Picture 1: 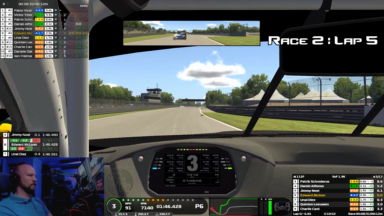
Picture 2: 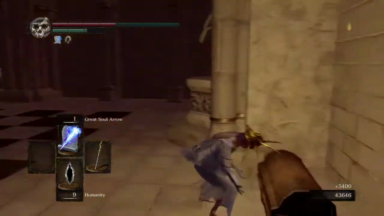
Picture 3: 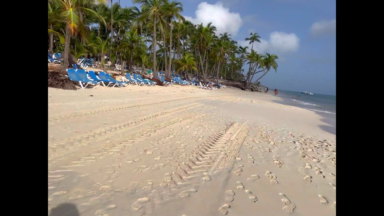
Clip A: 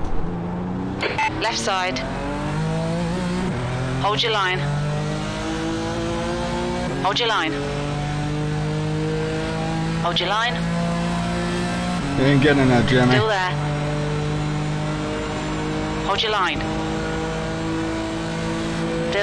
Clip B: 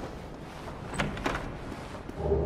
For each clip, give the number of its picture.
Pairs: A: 1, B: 2